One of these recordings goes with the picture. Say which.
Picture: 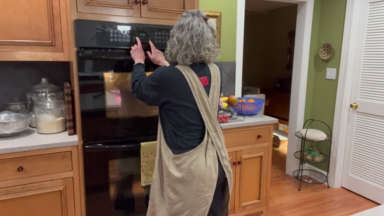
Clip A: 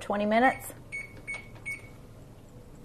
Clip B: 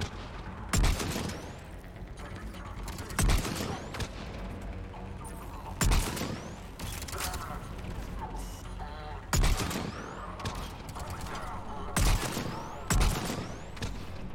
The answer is A